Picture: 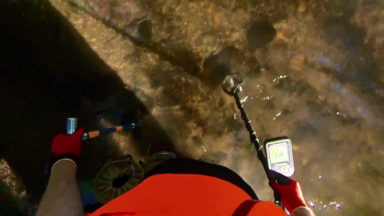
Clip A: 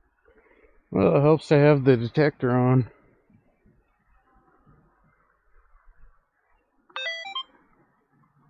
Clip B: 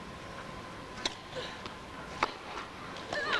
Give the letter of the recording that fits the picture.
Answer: A